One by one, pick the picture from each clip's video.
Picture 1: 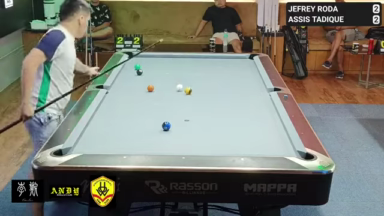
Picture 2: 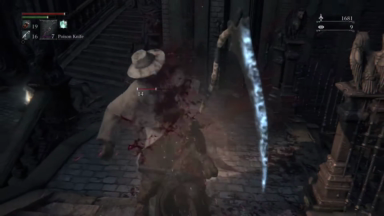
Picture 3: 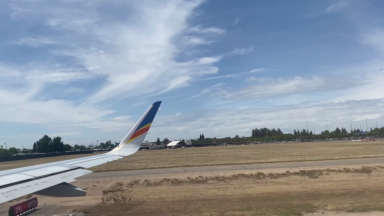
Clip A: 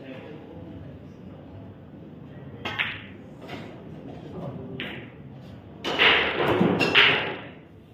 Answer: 1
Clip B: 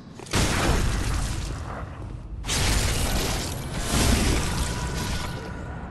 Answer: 2